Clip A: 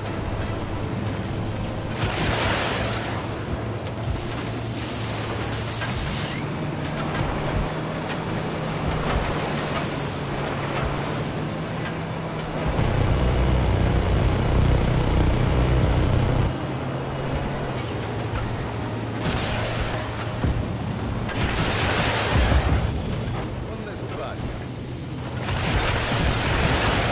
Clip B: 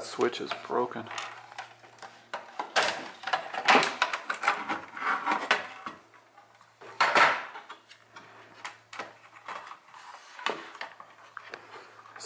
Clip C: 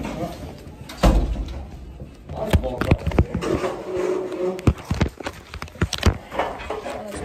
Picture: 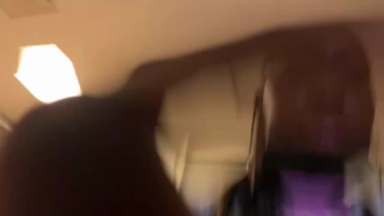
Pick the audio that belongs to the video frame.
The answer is C